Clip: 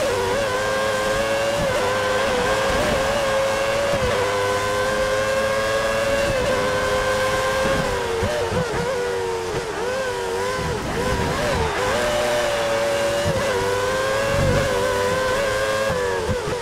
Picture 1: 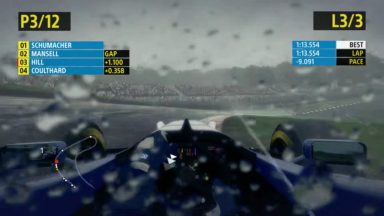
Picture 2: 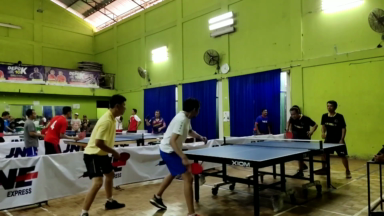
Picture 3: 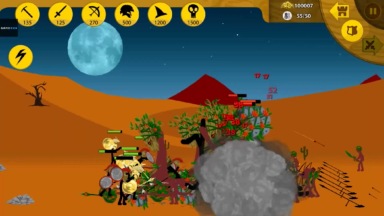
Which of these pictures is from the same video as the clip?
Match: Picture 1